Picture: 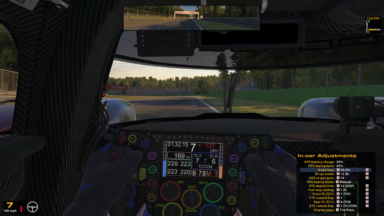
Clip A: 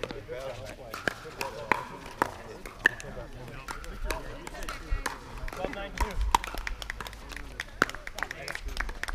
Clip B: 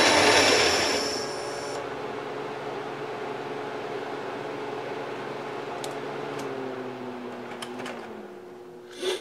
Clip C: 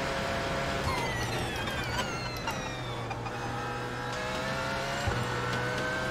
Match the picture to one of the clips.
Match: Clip C